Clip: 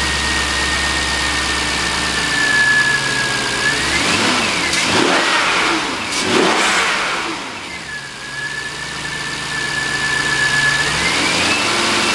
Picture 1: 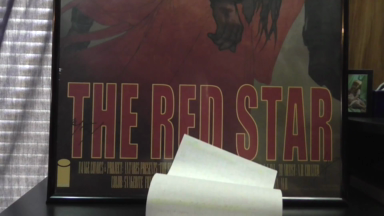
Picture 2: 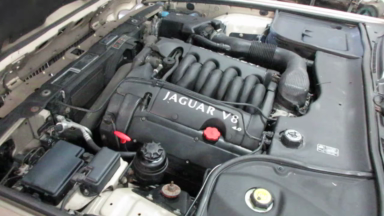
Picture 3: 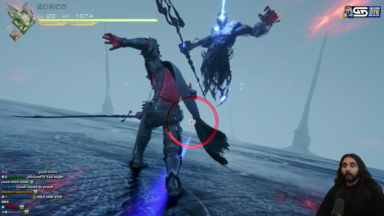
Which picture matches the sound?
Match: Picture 2